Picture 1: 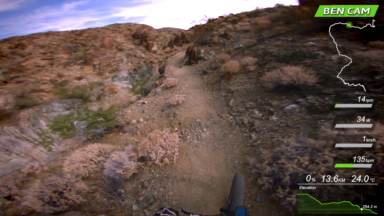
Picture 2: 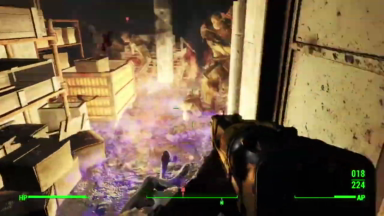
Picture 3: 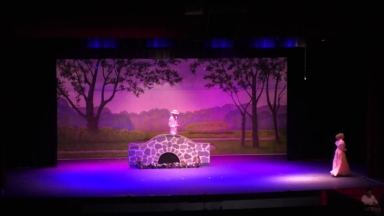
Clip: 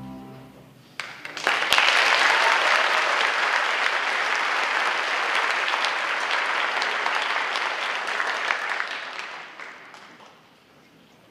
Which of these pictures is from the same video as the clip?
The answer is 3